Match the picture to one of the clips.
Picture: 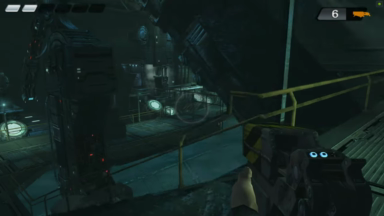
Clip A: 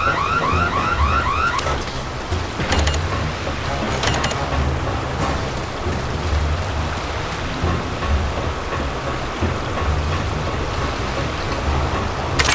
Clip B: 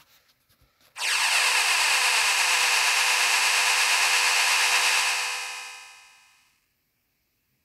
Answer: A